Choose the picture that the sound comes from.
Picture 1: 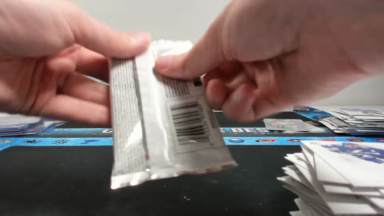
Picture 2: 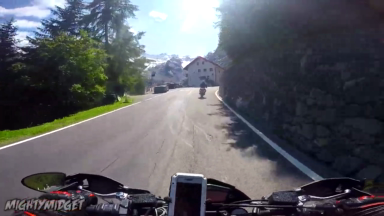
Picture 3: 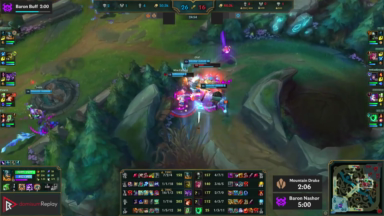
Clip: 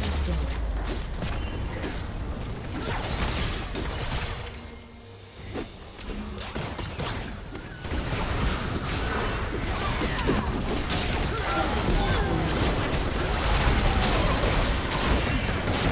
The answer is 3